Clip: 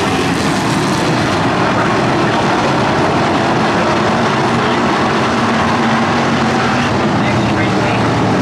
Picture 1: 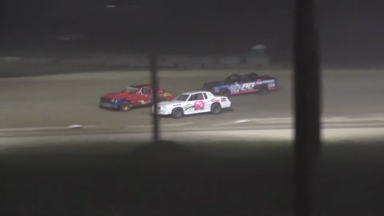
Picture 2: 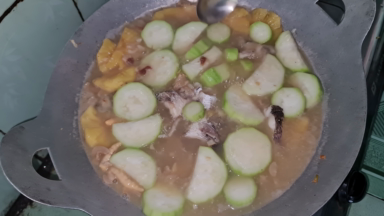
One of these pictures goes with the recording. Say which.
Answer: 1